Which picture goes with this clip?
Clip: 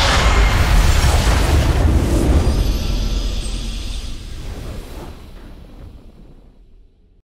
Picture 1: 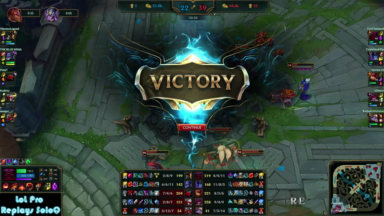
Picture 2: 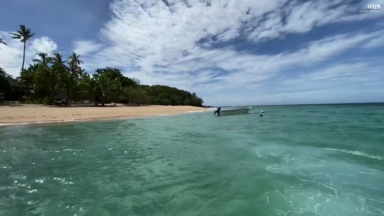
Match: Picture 1